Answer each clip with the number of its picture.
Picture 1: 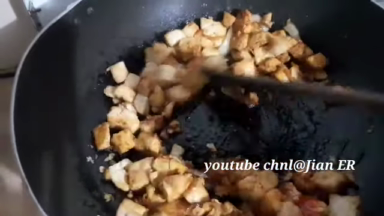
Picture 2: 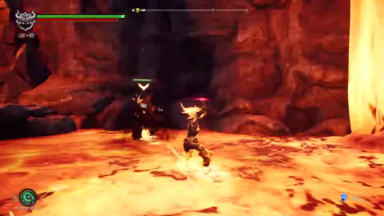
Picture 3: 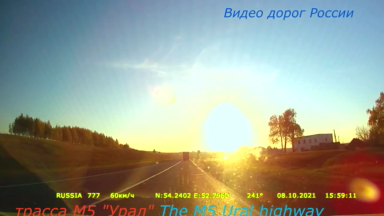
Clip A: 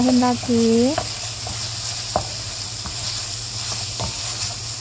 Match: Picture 1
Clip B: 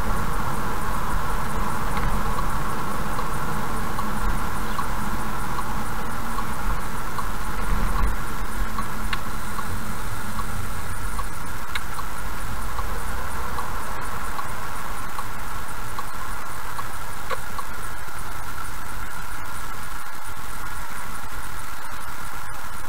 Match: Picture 3